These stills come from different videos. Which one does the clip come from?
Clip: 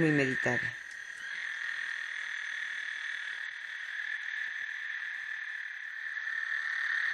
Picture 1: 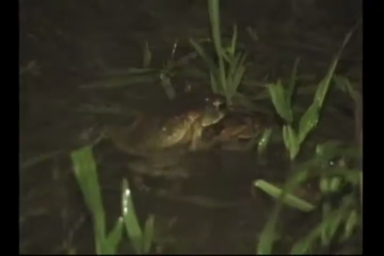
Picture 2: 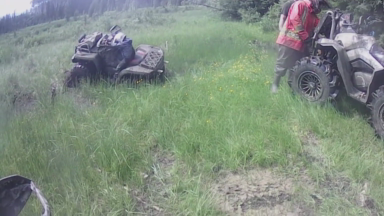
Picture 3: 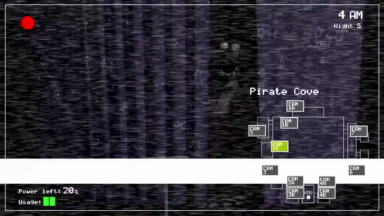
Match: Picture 1